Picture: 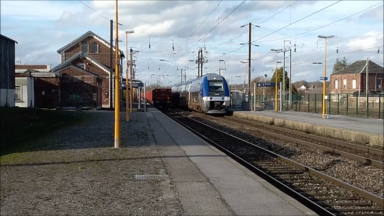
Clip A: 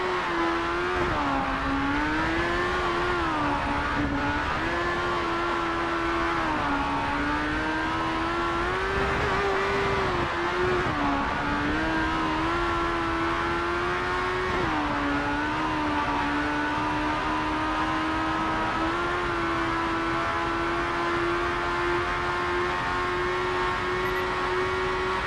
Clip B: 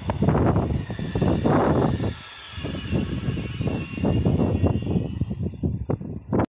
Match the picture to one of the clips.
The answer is B